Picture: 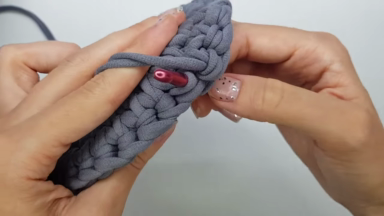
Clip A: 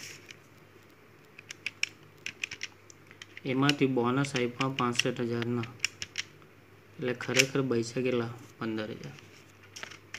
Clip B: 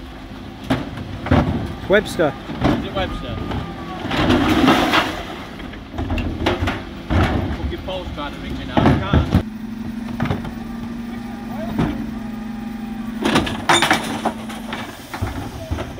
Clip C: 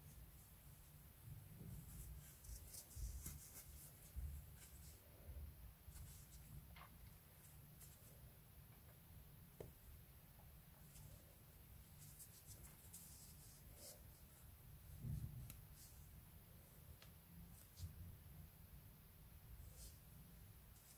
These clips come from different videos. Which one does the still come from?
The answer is C